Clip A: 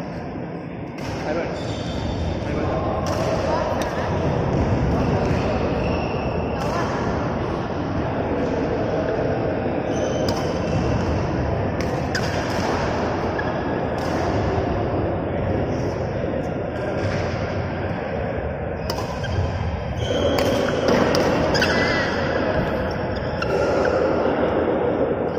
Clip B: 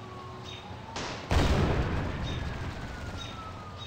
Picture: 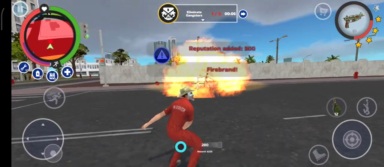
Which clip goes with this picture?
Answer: B